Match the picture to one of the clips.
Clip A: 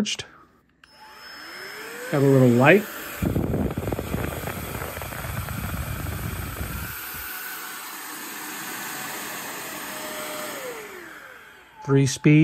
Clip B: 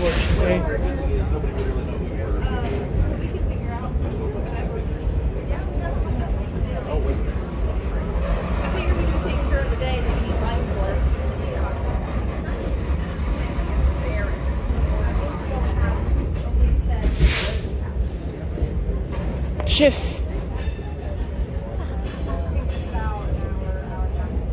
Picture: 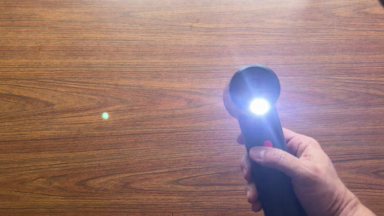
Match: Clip A